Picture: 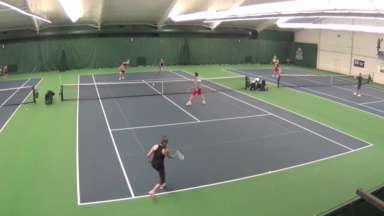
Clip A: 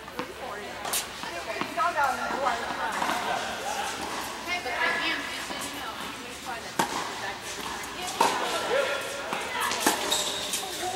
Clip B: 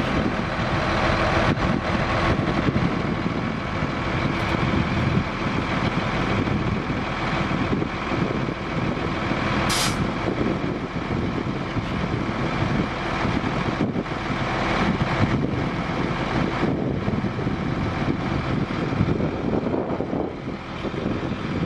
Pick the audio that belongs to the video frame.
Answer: A